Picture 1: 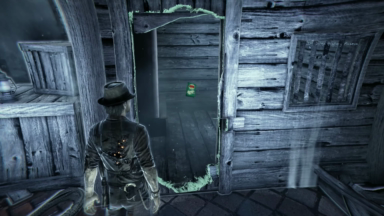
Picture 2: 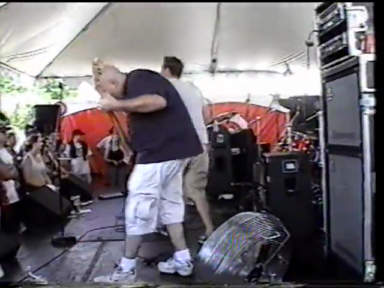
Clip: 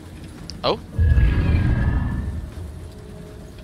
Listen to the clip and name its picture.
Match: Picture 1